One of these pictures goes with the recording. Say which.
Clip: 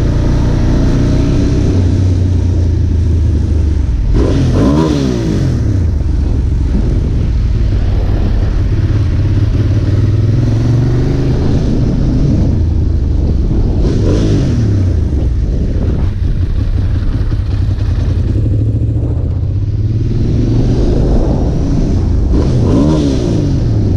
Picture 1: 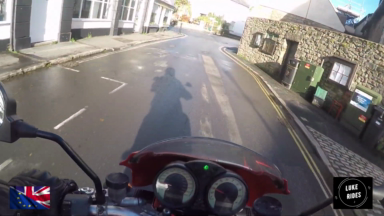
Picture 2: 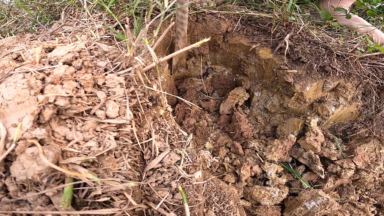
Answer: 1